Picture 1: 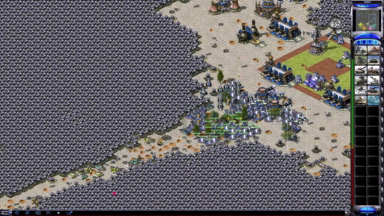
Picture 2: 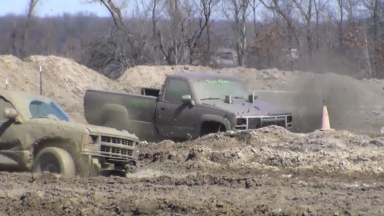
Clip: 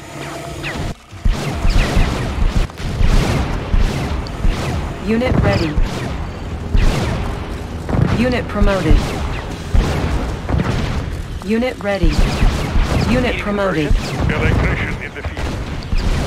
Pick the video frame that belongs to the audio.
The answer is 1